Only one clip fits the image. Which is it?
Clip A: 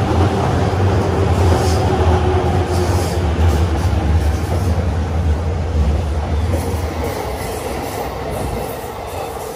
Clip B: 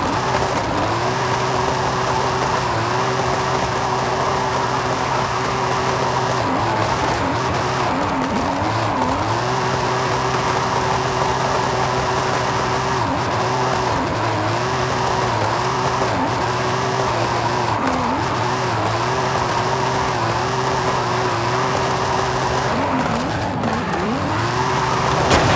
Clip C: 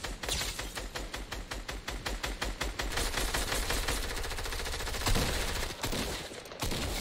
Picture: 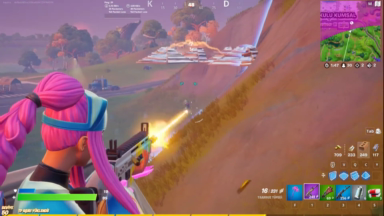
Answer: C